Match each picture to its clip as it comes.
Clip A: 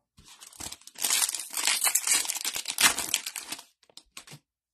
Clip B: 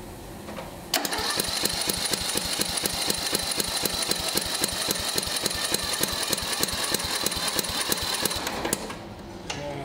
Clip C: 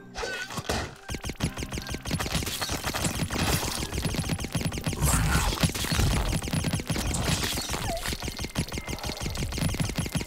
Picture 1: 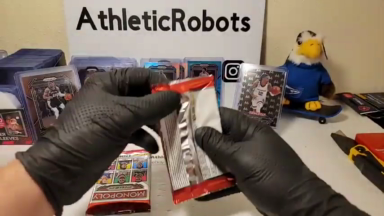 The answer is A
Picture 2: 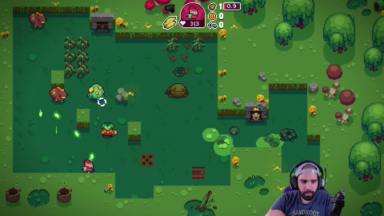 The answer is C